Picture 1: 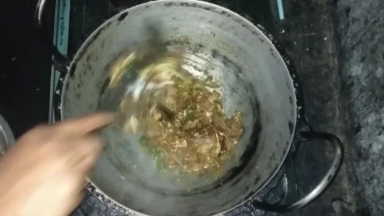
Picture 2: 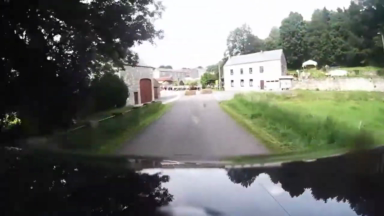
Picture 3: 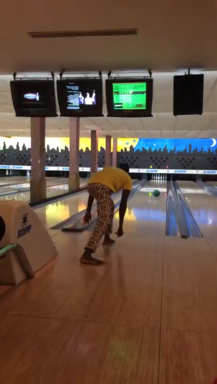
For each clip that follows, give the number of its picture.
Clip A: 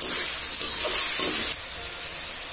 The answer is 1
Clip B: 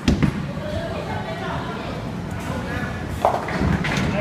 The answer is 3